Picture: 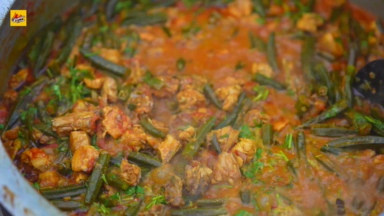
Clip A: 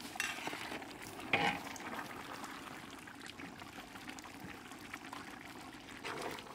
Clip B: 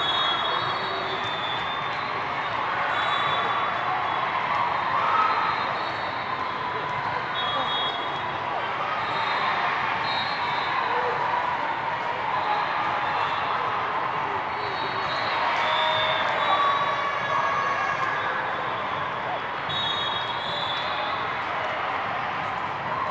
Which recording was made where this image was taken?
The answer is A